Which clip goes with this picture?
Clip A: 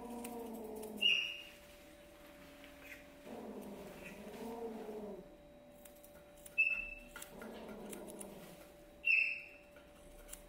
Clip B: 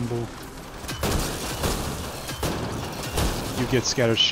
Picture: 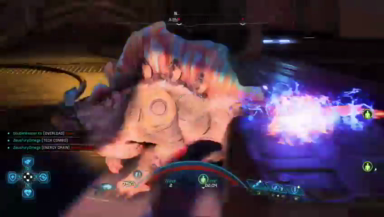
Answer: B